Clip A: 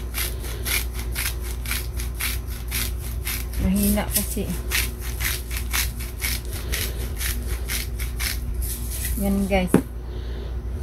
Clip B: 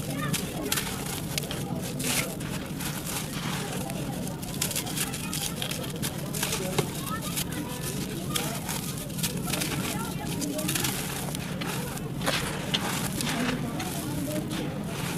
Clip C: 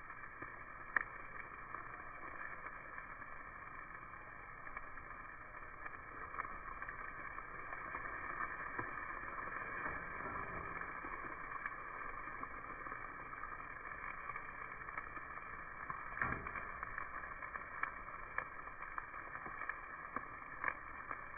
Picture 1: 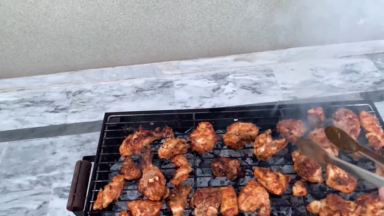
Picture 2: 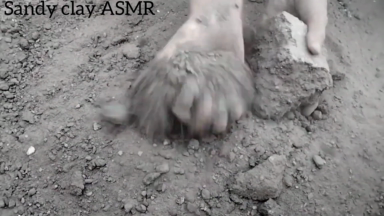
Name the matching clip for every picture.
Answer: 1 C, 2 B